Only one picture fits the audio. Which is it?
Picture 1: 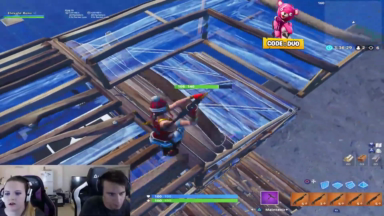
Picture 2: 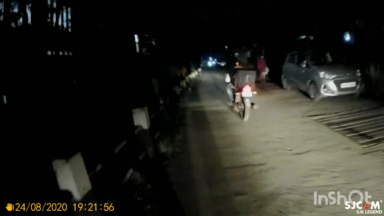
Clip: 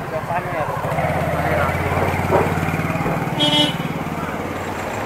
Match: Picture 2